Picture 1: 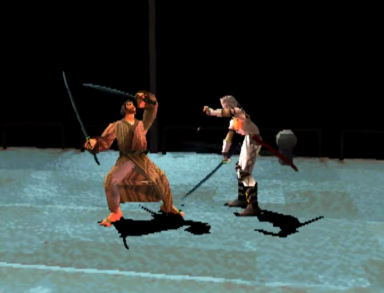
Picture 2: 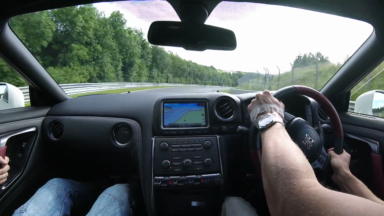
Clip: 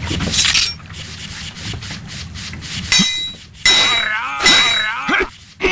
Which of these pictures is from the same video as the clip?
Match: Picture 1